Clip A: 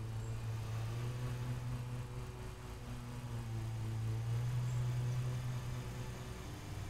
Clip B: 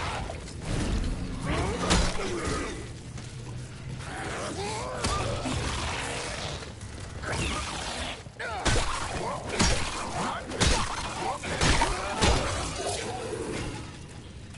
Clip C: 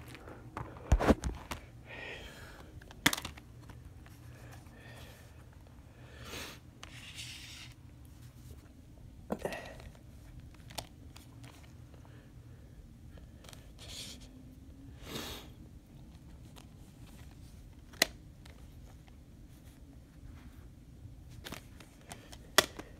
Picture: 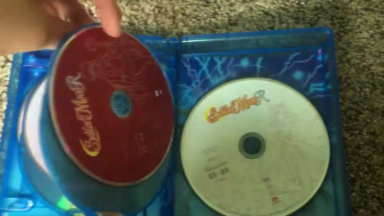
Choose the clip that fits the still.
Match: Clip C